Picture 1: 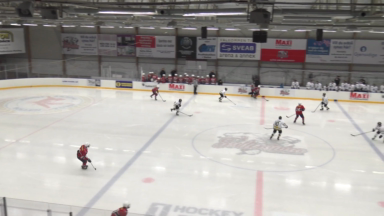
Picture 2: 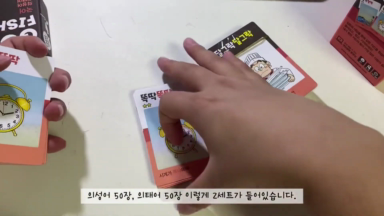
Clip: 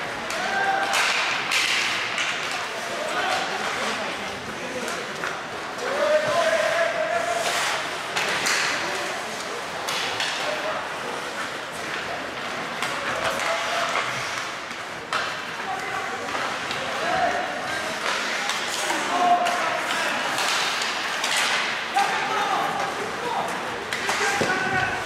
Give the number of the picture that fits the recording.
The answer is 1